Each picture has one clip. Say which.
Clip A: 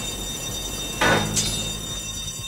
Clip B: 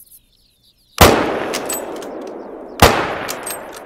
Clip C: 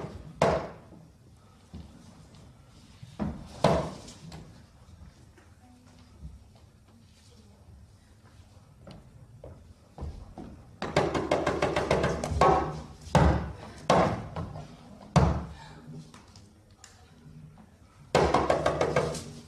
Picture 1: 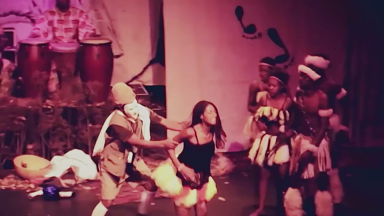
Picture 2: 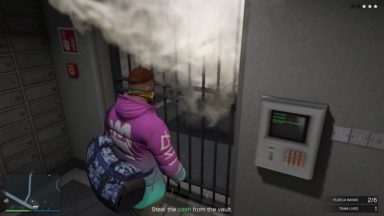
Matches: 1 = C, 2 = A